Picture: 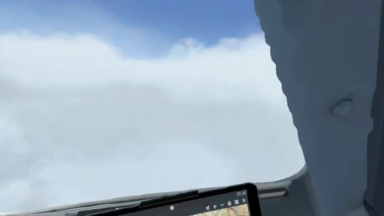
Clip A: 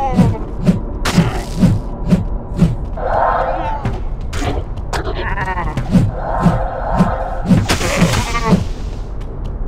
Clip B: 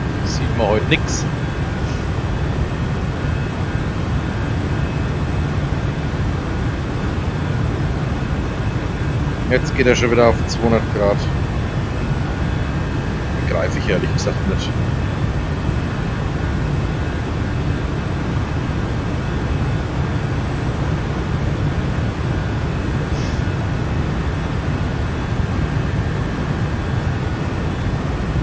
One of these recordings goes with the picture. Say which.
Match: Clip B